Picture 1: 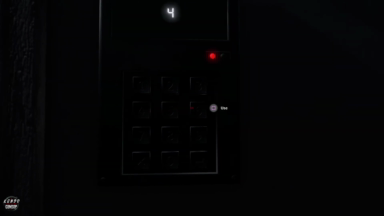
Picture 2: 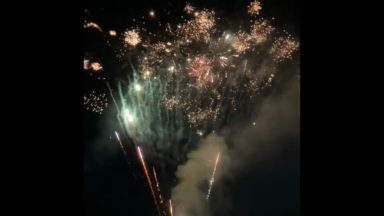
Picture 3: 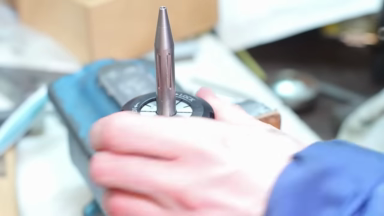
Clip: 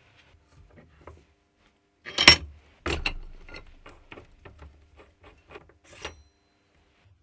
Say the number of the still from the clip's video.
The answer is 3